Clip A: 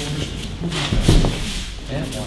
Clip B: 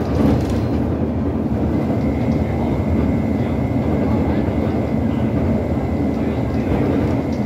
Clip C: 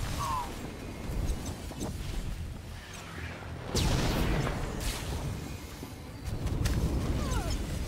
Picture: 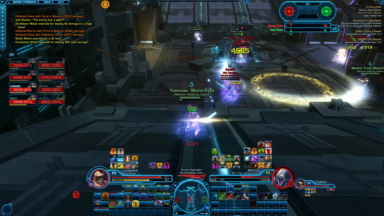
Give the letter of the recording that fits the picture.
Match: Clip C